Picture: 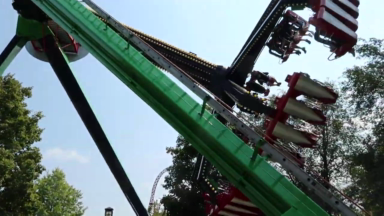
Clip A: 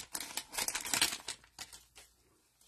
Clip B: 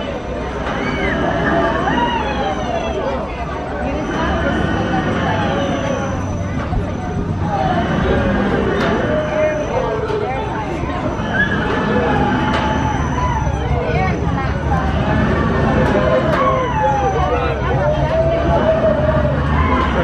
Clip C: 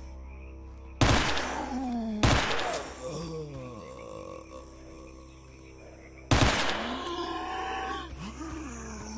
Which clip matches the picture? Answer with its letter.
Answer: B